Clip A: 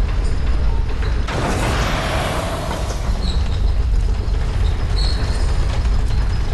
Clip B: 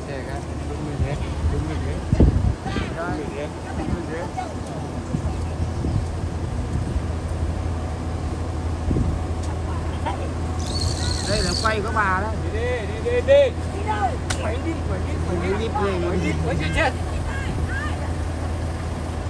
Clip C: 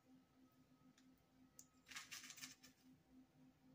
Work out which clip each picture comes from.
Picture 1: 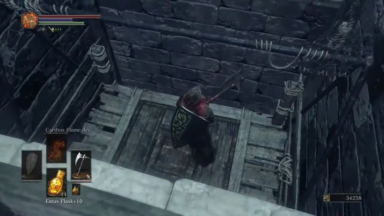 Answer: A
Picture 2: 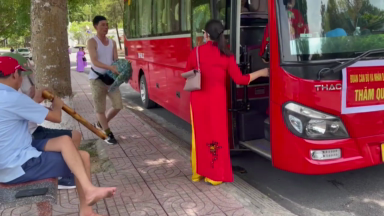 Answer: B